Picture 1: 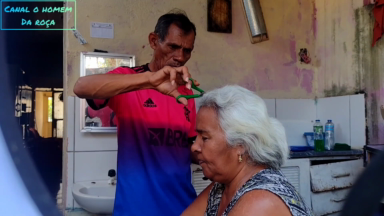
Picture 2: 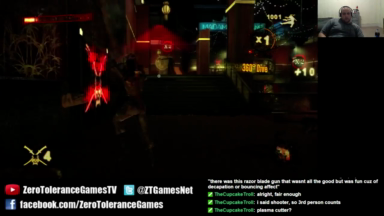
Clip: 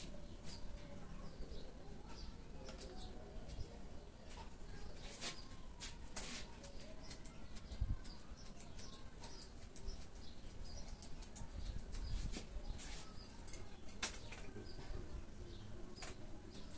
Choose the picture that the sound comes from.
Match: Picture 1